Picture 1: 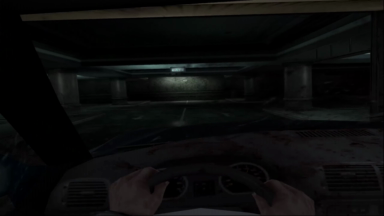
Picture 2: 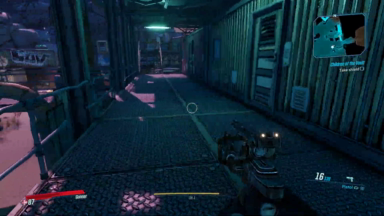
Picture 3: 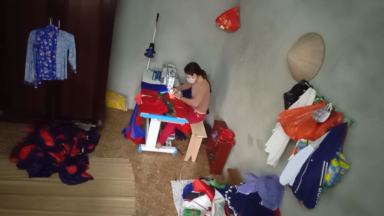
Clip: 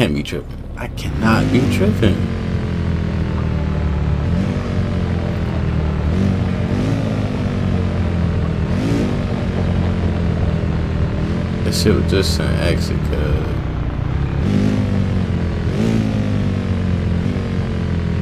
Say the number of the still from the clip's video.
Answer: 1